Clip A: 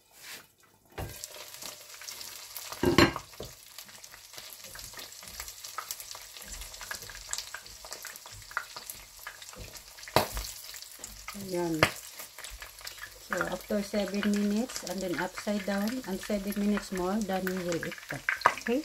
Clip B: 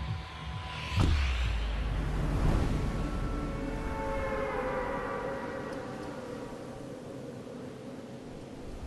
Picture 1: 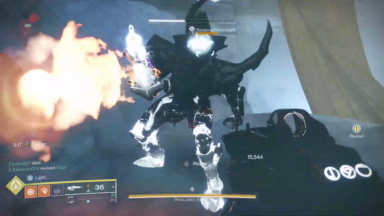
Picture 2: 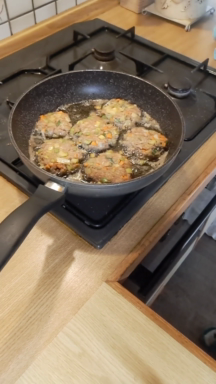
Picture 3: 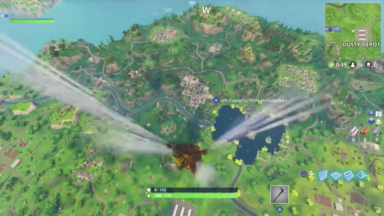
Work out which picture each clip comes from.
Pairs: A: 2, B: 3